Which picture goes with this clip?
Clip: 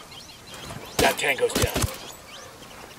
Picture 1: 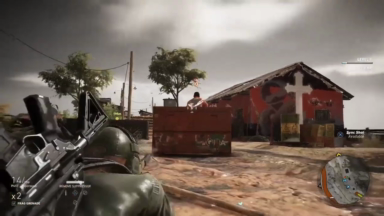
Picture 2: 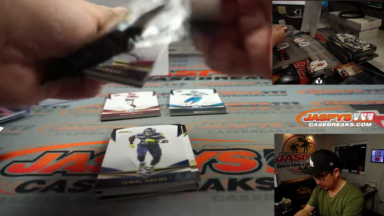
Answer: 1